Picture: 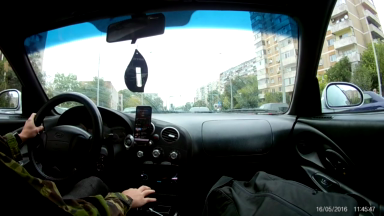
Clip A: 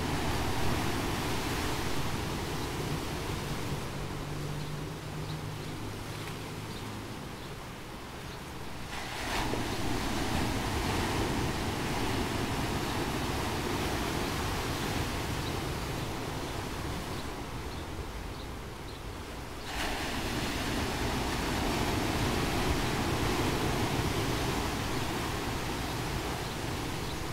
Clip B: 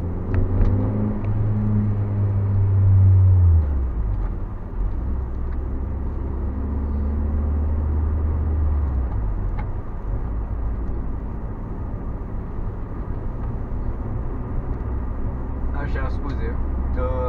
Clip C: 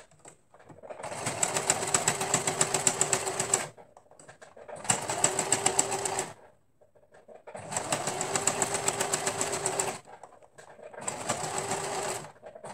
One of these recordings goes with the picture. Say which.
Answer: B